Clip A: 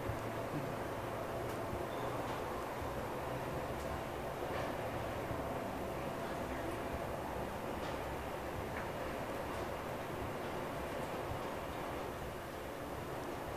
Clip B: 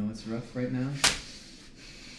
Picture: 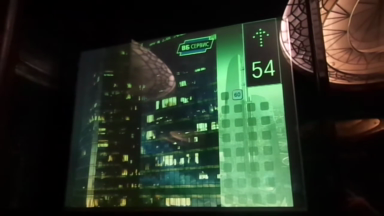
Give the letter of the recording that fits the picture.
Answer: A